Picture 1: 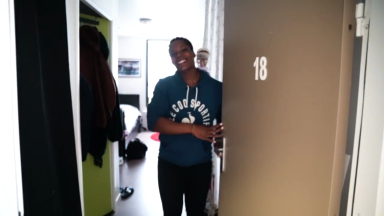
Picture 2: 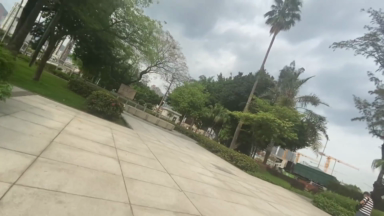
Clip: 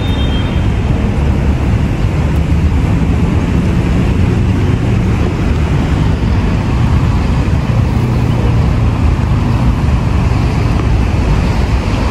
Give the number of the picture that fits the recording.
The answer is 2